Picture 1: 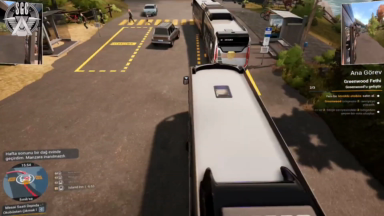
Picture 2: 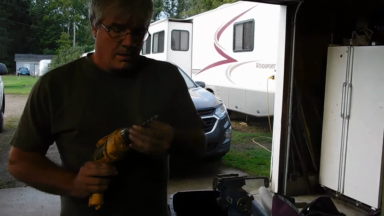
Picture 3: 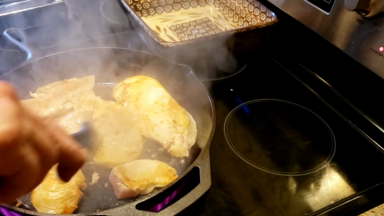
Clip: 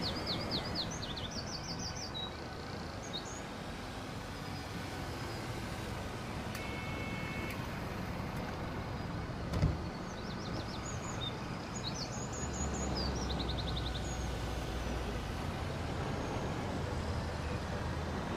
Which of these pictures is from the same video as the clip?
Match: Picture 1